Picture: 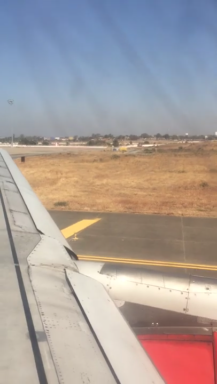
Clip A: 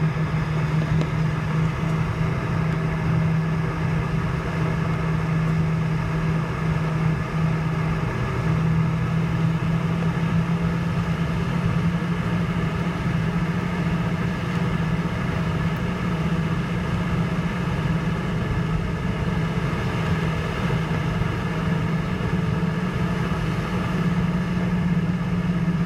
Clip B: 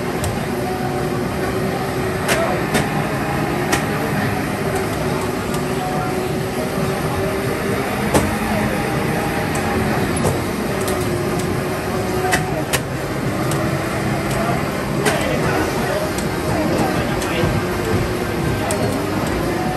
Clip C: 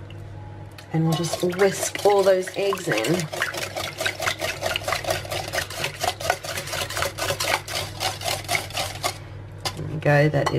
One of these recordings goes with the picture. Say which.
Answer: A